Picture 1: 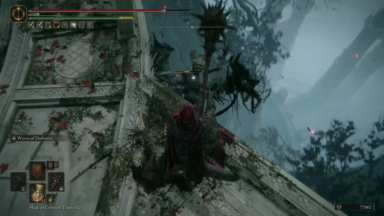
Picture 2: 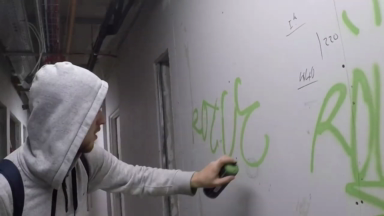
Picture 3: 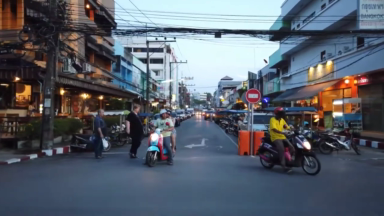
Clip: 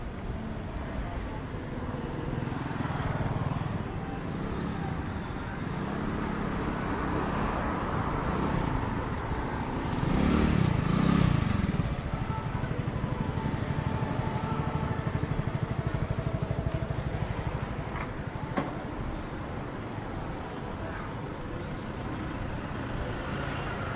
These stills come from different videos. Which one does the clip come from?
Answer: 3